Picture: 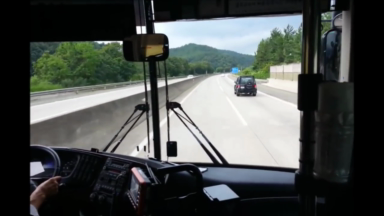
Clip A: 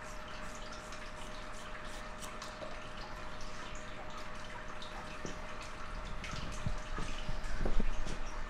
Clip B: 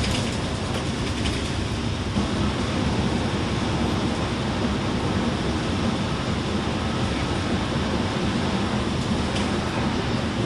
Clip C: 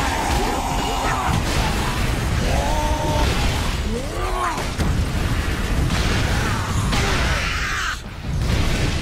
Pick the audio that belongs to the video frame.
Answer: B